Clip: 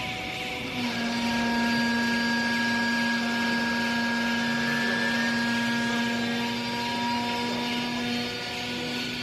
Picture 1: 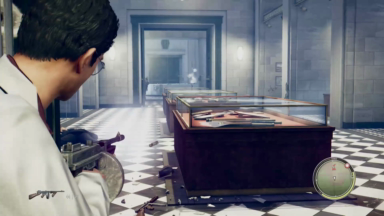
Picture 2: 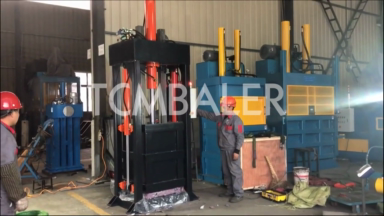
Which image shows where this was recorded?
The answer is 2